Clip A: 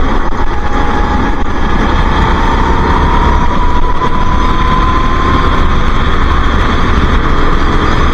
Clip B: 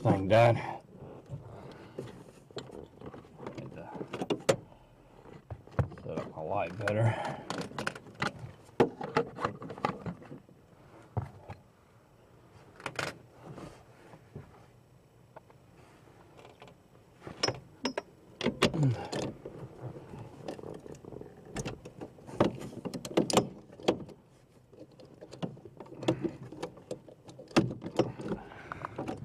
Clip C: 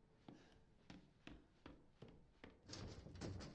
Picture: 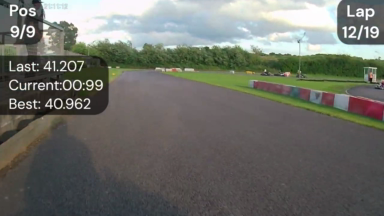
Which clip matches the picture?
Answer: A